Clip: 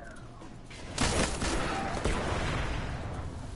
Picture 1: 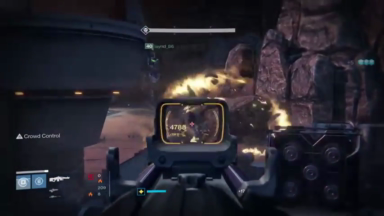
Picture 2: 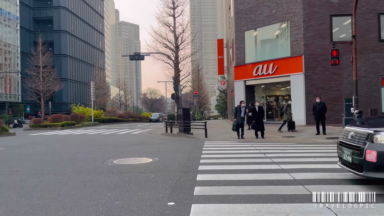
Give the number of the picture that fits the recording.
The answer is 1